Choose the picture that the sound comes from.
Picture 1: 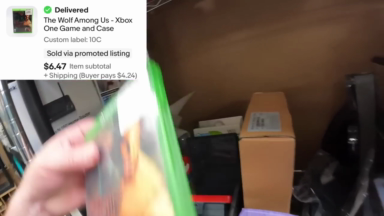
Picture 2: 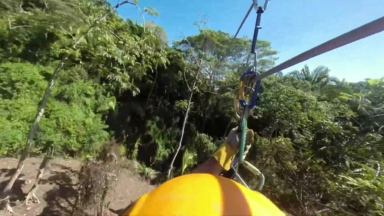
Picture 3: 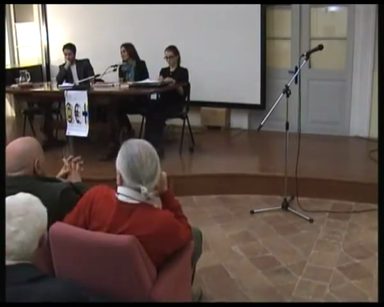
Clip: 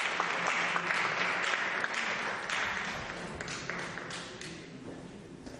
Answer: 3